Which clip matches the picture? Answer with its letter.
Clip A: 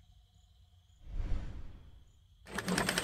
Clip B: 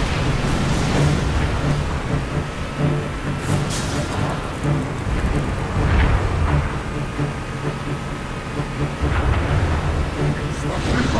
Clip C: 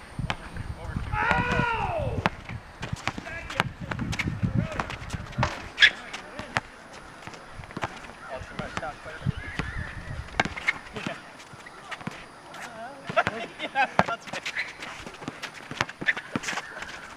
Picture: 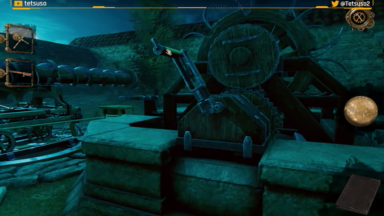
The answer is A